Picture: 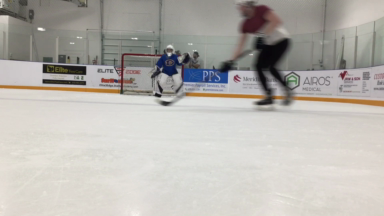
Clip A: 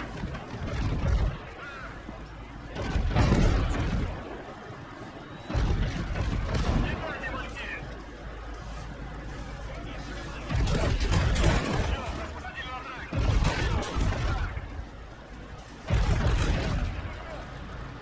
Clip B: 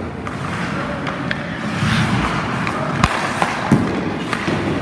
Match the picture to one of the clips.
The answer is B